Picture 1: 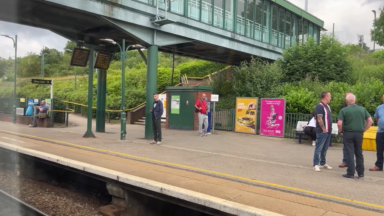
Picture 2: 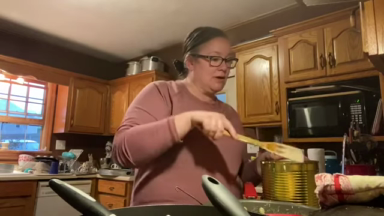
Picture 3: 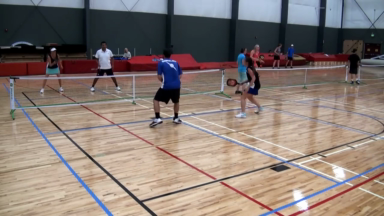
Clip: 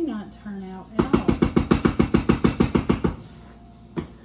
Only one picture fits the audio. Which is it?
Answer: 2